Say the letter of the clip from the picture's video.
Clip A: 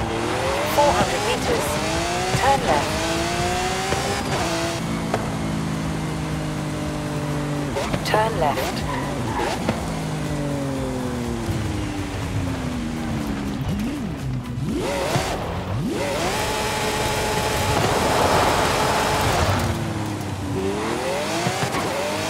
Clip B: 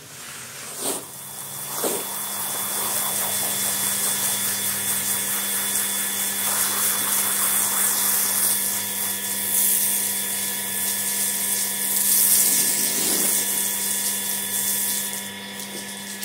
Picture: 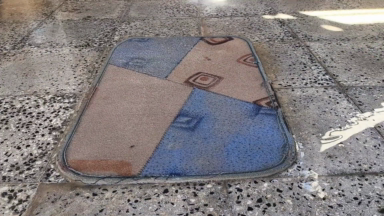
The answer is B